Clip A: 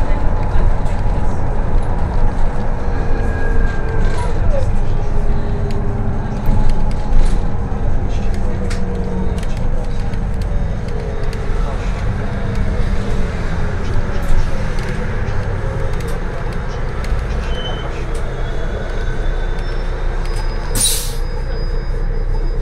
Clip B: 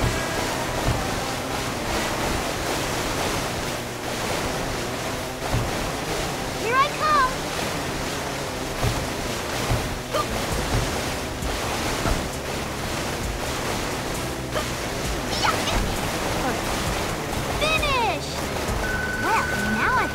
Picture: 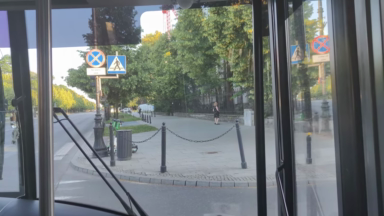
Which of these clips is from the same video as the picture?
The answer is A